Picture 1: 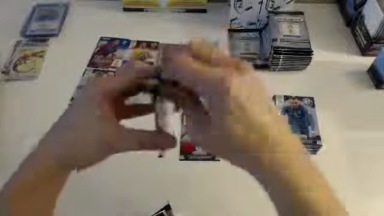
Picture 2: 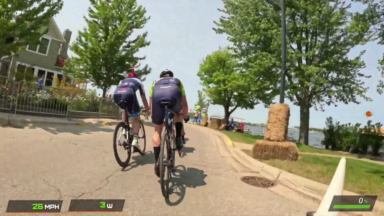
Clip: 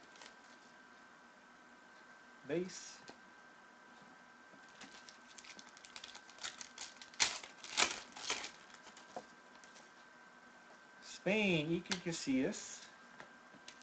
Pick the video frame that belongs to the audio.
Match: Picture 1